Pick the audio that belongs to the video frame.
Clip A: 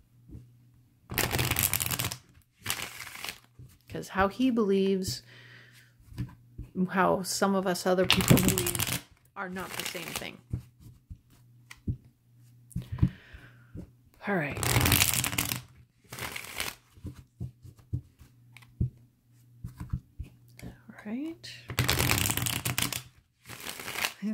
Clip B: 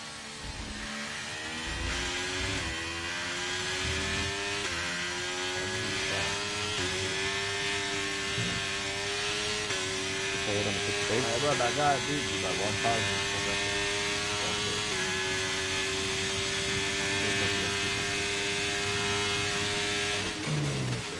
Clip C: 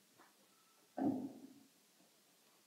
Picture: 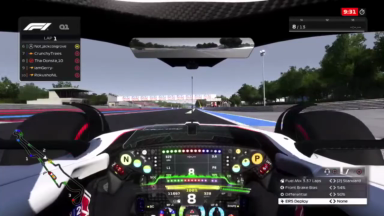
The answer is B